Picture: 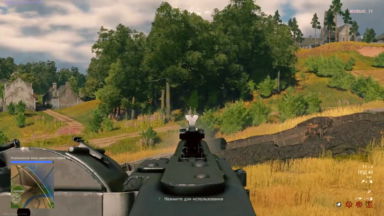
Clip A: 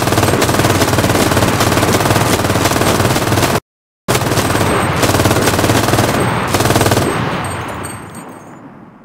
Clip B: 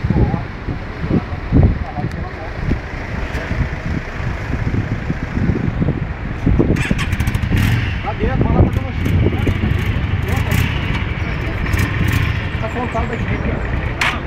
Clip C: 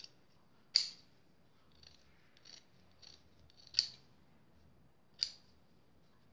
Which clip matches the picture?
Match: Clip A